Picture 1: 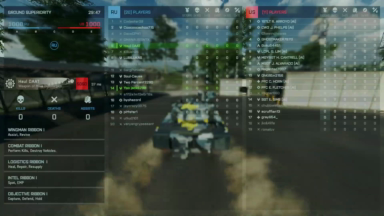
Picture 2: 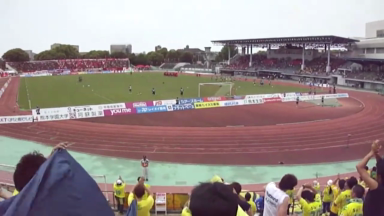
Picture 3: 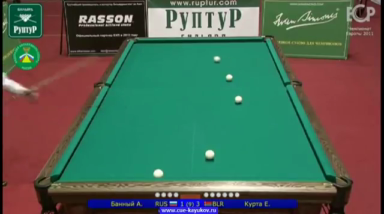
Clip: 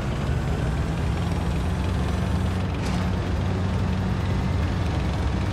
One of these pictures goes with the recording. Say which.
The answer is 1